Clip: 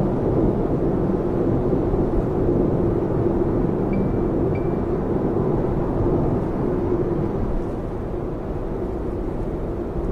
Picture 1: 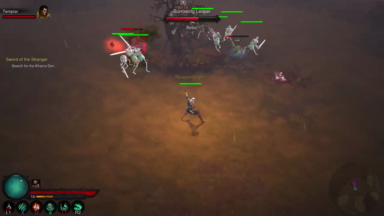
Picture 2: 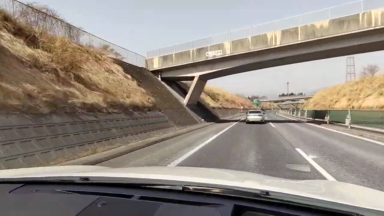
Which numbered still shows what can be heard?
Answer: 2